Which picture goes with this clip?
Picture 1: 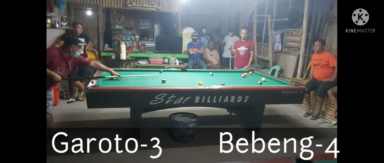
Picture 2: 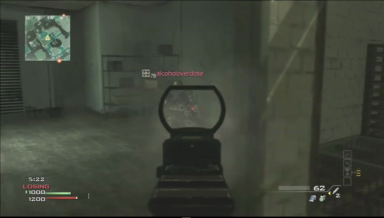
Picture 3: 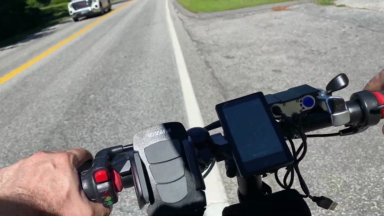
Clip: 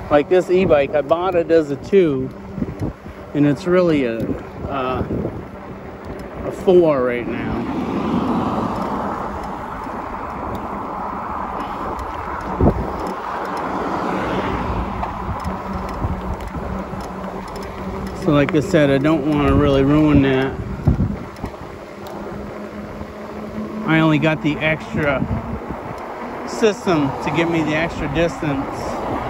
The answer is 3